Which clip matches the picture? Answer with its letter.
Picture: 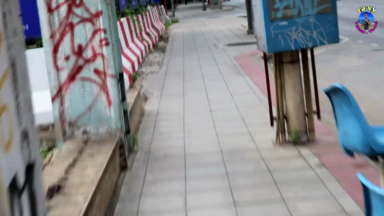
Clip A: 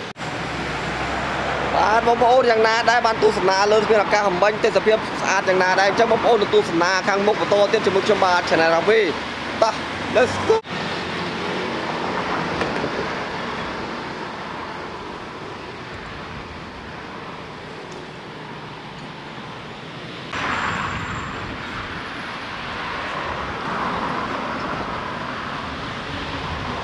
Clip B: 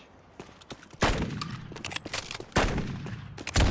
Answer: A